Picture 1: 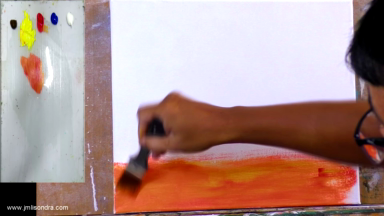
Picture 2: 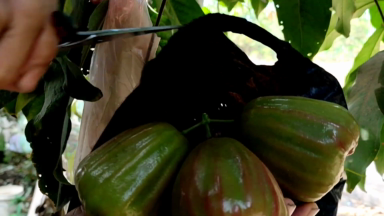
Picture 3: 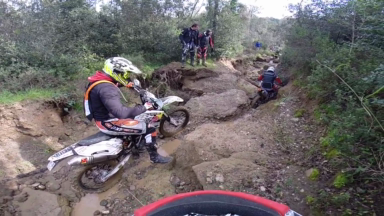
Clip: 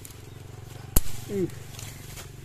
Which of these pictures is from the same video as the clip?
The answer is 2